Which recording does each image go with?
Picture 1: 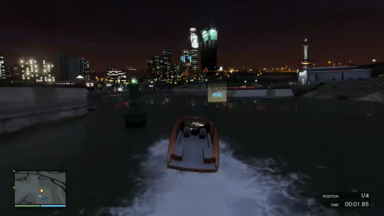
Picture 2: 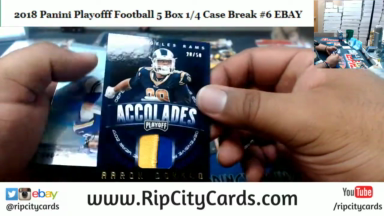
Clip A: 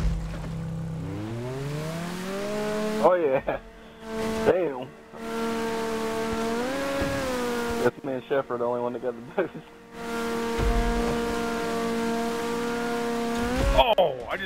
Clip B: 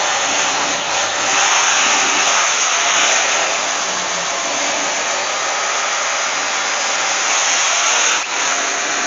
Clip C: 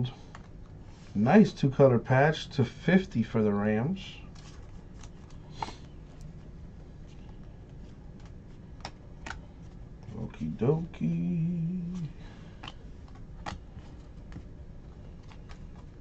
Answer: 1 A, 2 C